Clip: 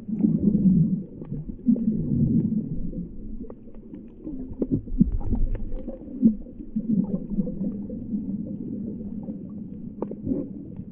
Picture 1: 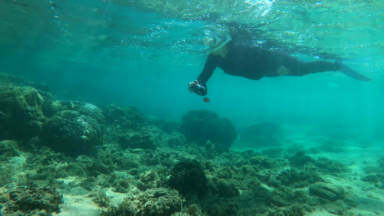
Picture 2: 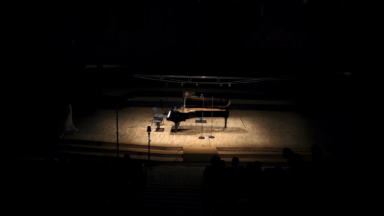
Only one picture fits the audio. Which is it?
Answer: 1